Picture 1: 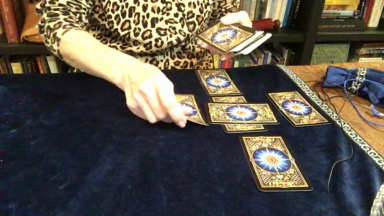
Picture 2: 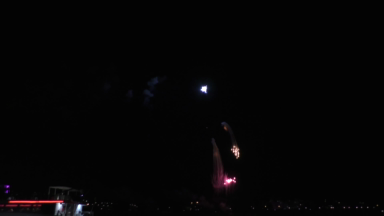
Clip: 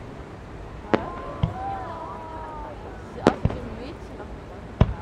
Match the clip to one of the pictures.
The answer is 2